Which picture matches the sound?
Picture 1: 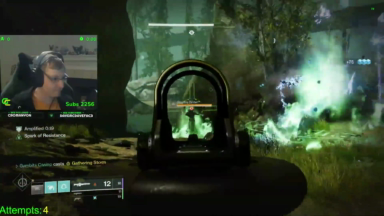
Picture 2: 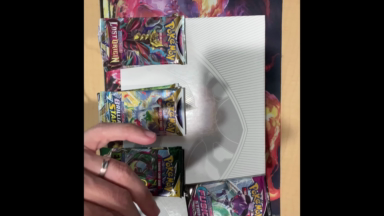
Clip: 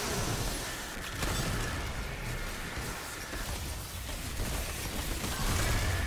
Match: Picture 1